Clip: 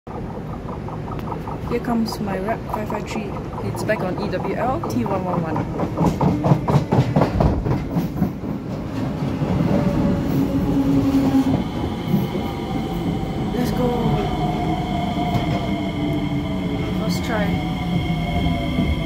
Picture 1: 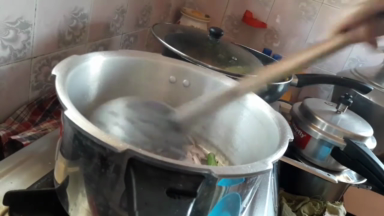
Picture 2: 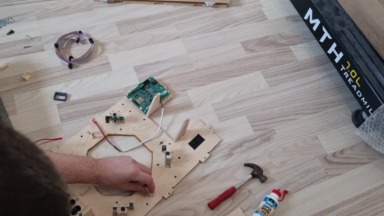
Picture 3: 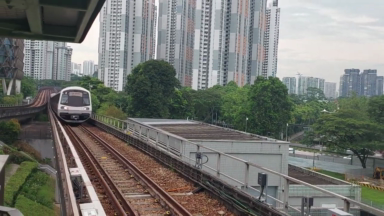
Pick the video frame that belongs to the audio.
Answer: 3